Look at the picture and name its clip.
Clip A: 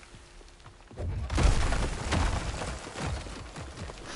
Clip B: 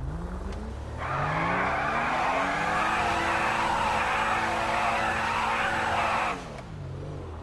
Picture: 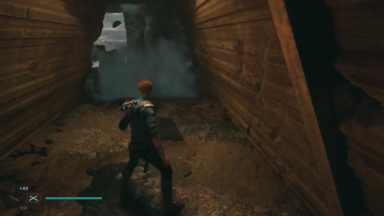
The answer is A